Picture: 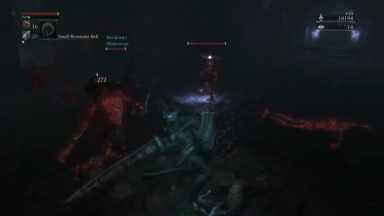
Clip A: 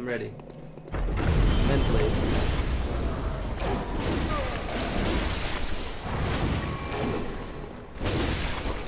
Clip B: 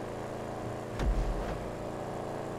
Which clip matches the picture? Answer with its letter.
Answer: A